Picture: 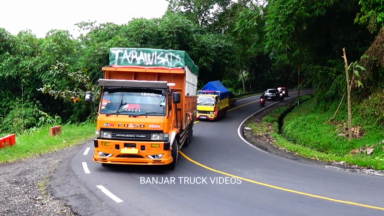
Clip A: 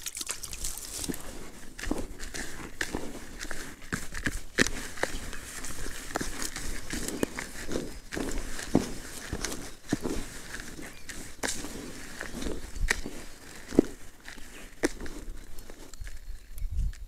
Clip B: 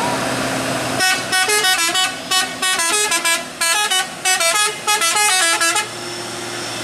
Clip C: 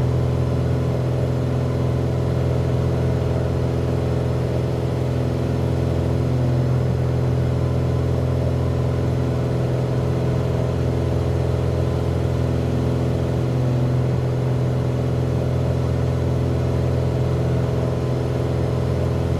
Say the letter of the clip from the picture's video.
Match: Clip B